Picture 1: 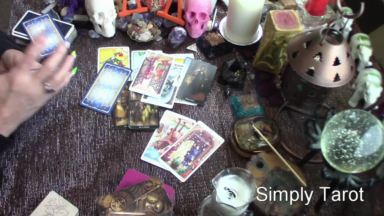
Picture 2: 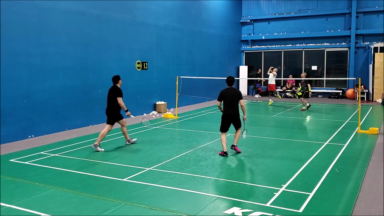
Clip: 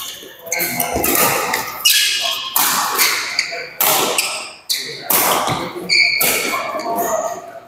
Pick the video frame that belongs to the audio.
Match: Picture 2